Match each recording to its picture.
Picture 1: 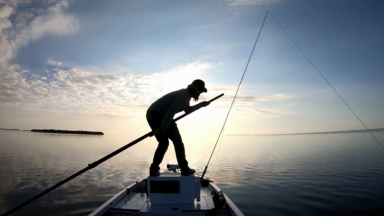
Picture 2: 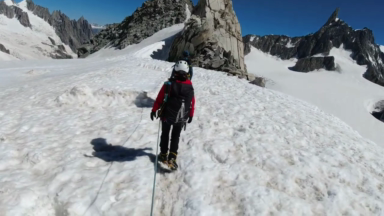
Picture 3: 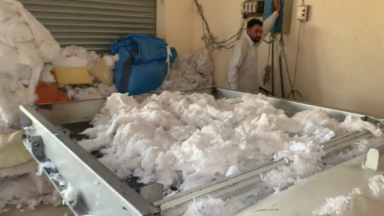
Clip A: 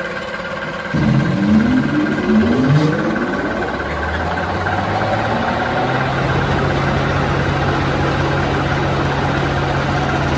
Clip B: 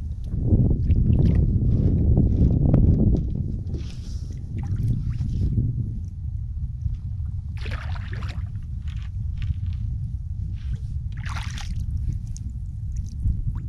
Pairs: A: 3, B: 1